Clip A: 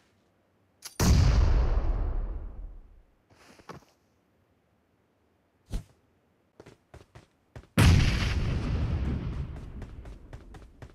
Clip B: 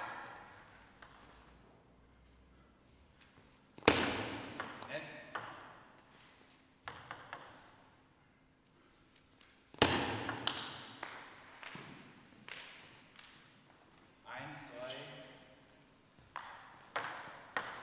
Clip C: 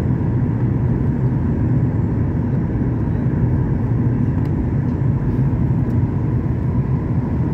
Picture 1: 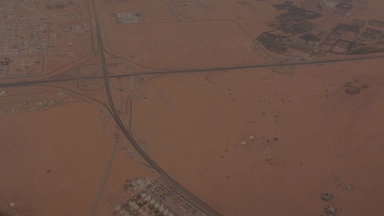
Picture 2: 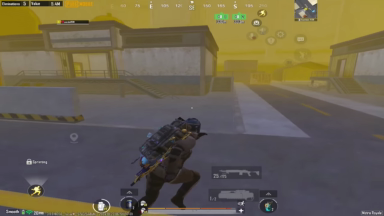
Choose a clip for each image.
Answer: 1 C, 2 A